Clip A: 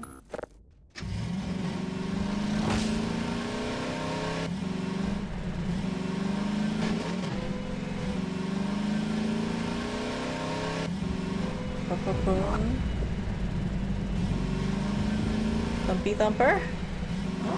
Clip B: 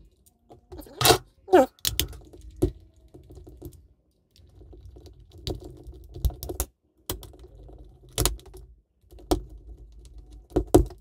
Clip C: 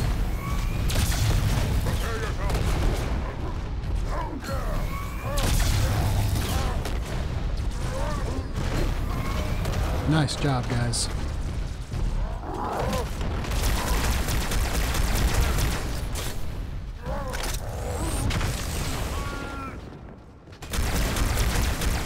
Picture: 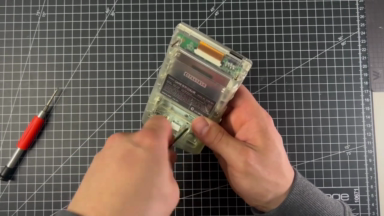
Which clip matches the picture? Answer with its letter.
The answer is B